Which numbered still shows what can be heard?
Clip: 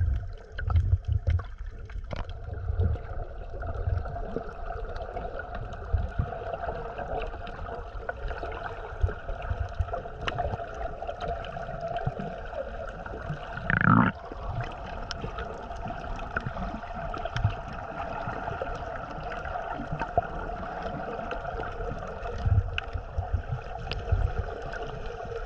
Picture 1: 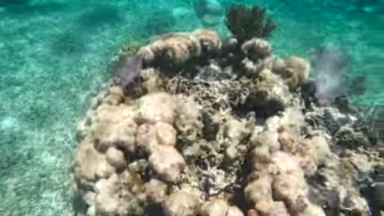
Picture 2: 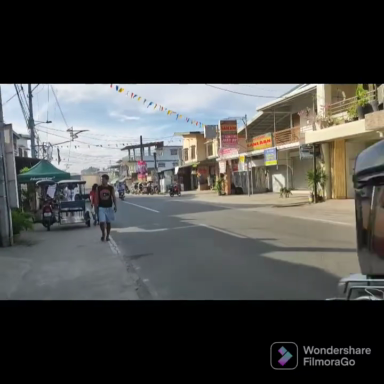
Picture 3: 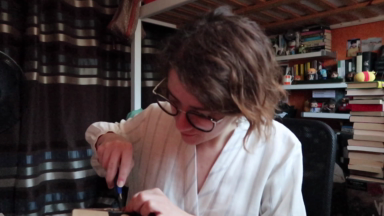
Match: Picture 1